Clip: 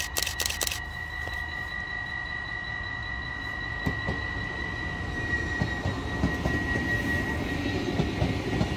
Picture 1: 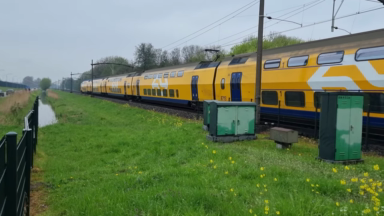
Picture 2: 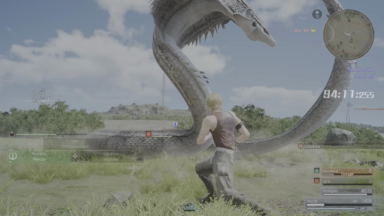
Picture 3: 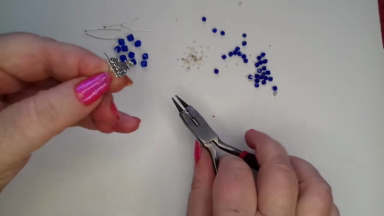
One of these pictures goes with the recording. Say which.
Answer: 1